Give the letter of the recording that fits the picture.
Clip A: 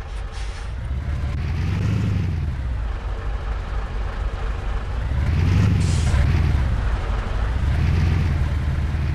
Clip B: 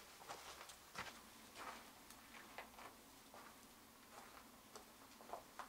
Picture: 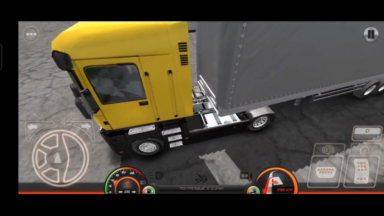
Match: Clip A